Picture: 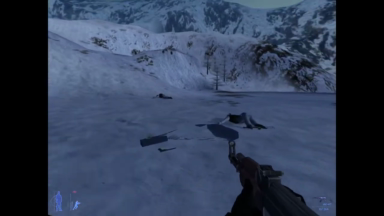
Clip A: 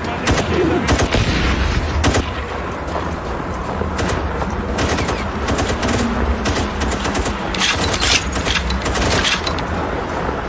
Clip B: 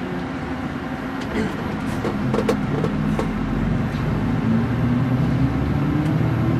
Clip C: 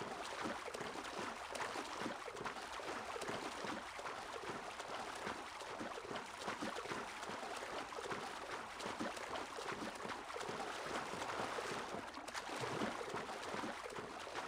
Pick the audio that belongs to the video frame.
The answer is A